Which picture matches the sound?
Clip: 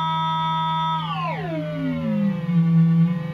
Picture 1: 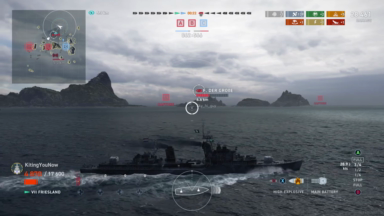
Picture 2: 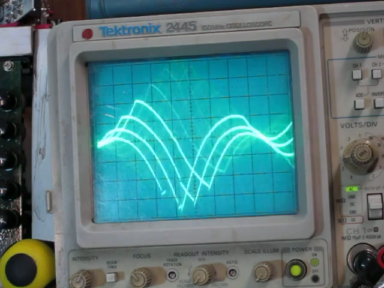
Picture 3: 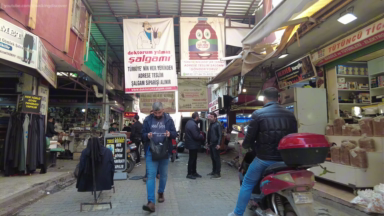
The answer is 2